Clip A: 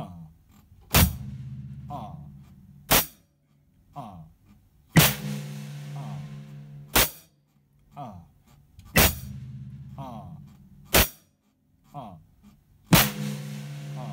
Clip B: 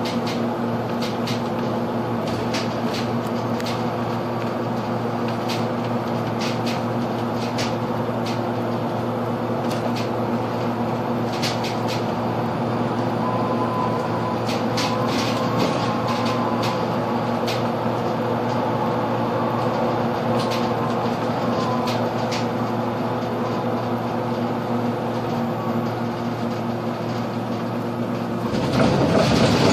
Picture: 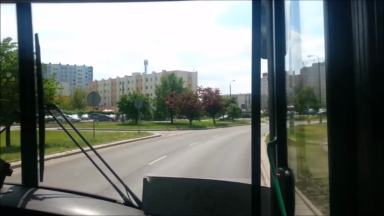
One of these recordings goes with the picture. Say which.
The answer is B